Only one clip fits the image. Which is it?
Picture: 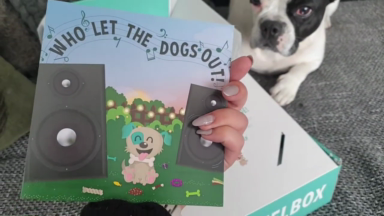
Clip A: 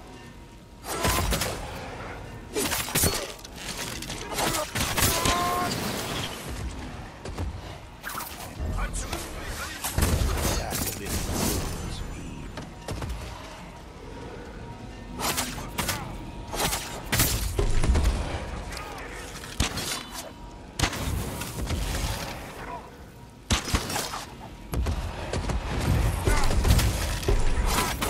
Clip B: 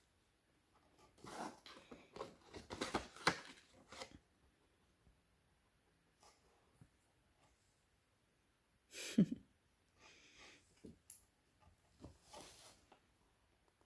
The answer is B